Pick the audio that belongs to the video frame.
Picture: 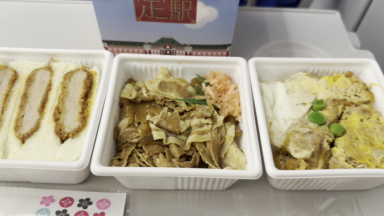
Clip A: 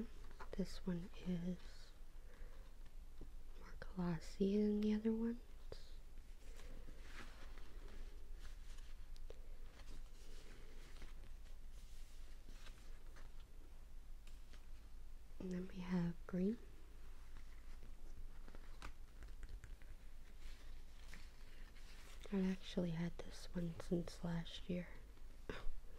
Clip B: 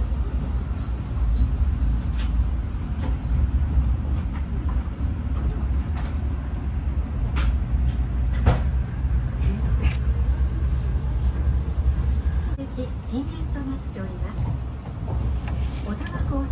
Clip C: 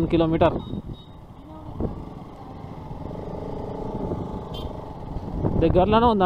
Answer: B